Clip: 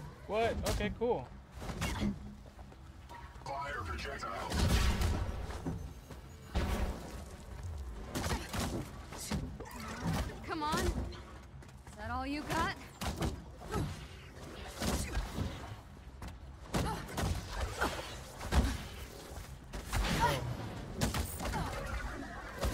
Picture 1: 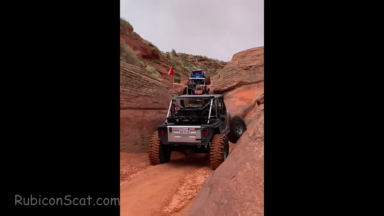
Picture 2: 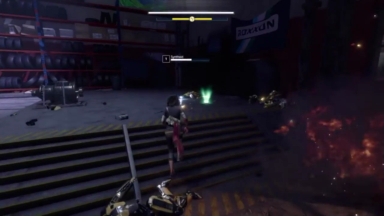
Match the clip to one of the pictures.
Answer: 2